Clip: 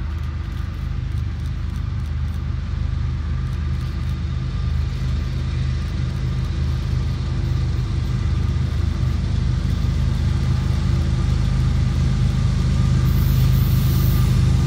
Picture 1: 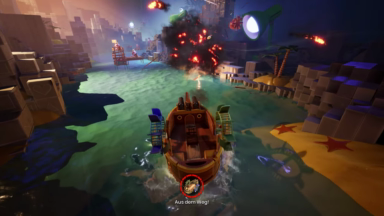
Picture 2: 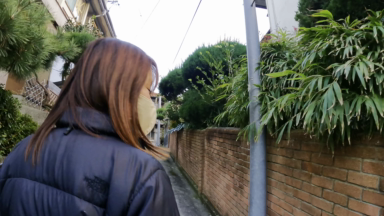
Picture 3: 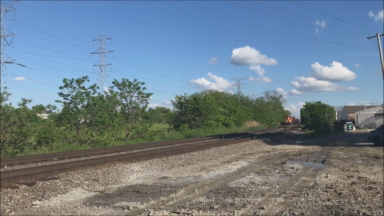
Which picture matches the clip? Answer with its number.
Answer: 3